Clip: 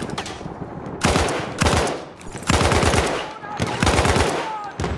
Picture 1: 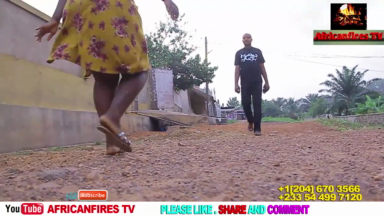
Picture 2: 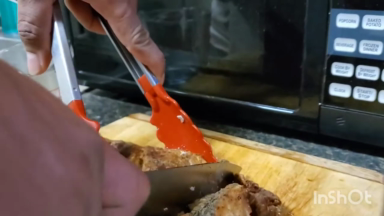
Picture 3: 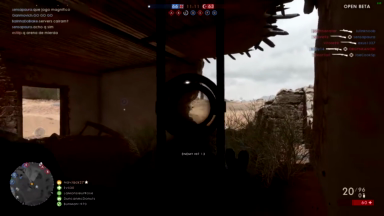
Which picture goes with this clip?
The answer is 3